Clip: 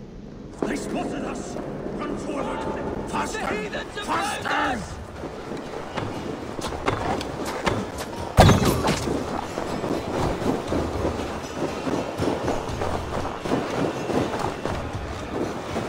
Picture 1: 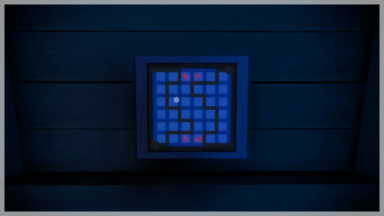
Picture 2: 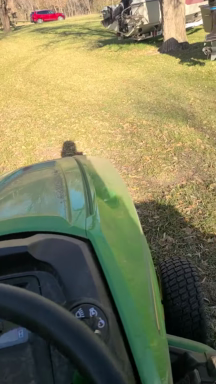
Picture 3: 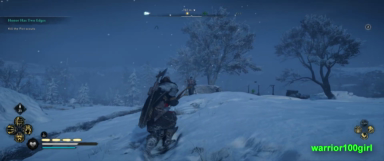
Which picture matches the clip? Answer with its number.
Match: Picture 3